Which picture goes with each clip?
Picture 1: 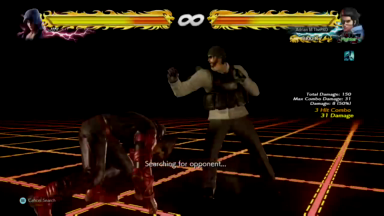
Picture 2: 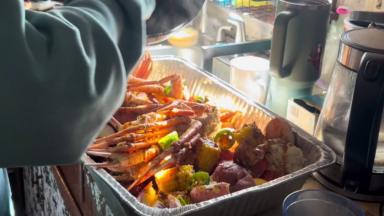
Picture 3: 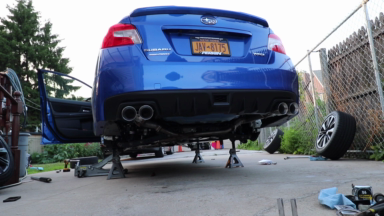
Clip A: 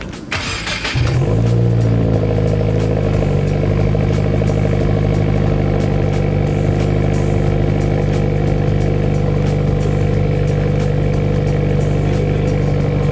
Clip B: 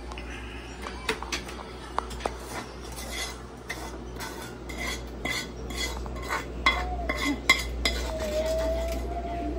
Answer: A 3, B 2